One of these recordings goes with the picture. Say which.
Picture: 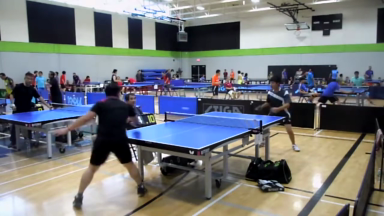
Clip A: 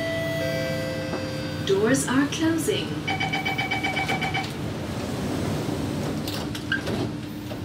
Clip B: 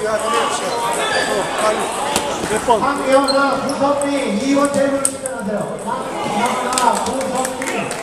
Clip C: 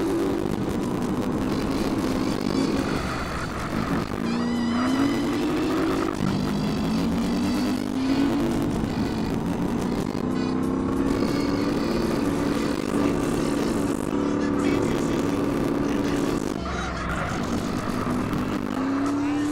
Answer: B